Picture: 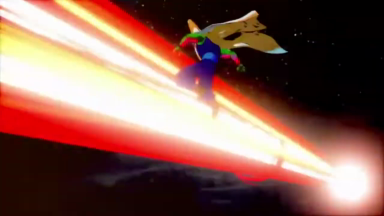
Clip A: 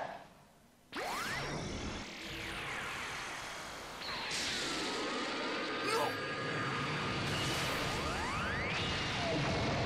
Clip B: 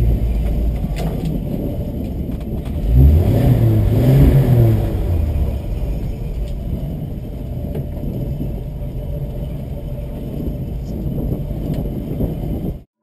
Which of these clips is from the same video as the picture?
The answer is A